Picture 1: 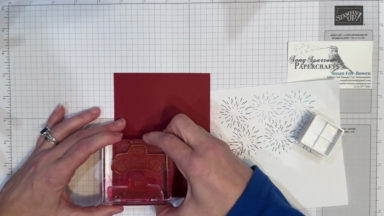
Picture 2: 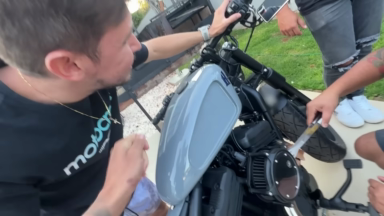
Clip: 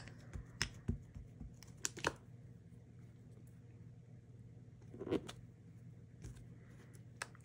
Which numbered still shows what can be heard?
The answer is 1